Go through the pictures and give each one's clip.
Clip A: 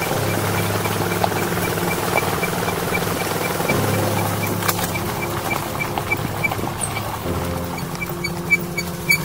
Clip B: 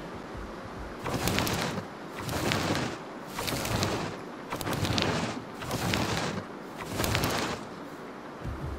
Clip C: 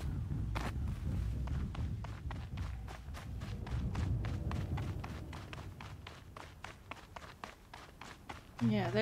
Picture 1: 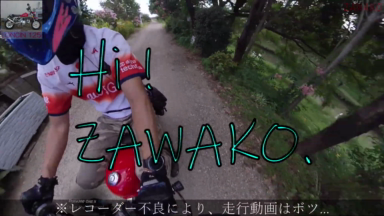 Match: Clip A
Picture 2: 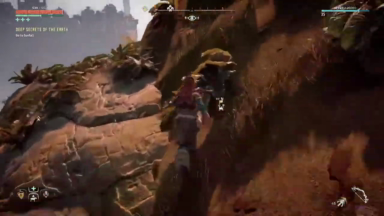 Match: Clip C